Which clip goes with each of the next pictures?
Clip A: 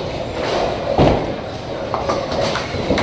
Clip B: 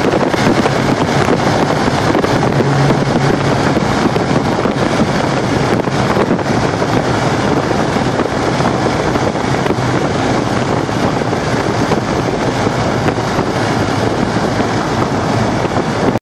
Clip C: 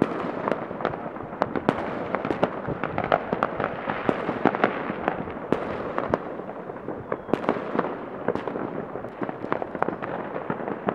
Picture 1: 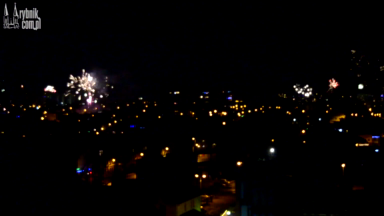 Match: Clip C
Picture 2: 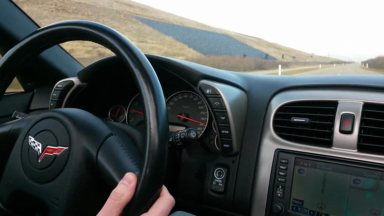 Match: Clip B